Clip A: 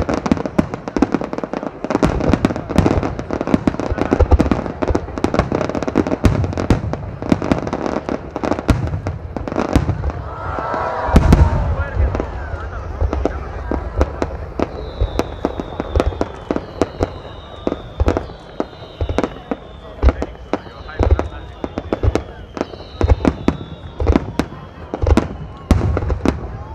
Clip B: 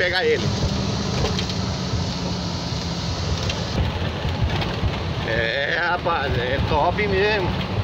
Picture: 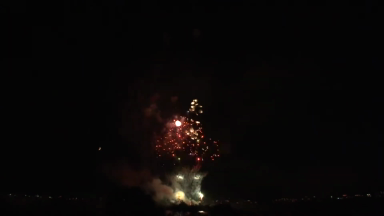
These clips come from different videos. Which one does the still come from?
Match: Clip A